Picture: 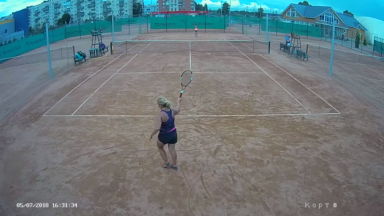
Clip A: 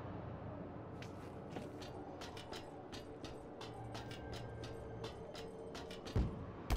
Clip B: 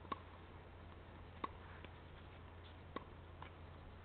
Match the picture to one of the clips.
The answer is B